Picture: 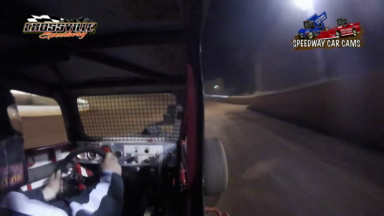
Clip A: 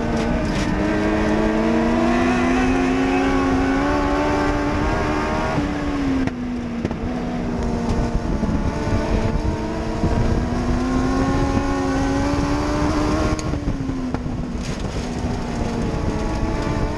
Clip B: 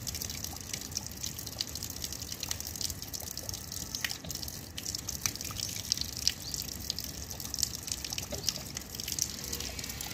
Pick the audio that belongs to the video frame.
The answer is A